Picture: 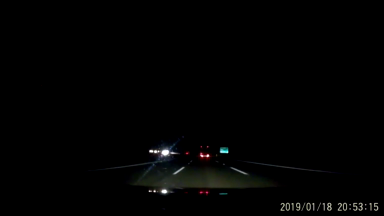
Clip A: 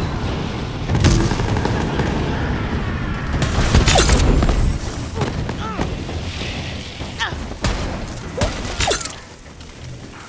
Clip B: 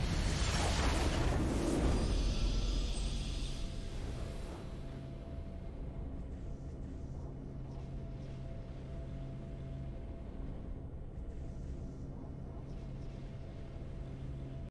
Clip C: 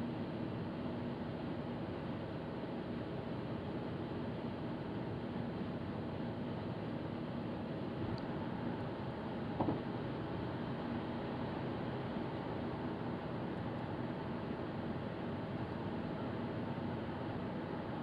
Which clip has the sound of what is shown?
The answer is C